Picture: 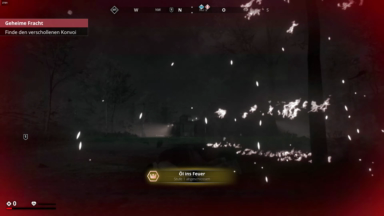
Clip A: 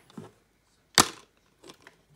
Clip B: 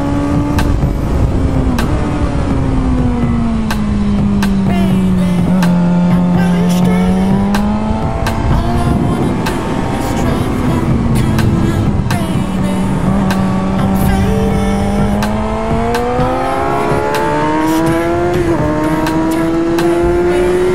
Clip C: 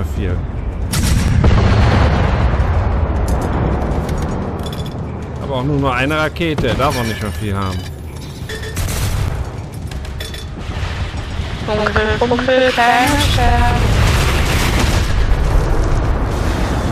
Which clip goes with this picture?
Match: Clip C